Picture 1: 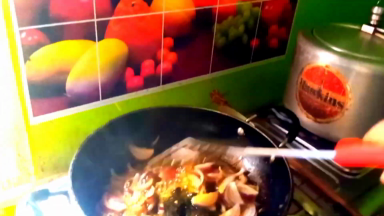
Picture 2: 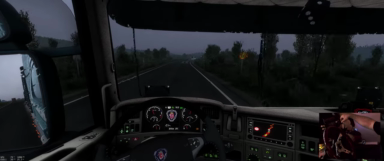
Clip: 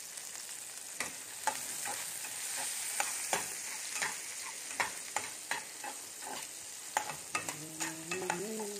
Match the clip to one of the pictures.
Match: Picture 1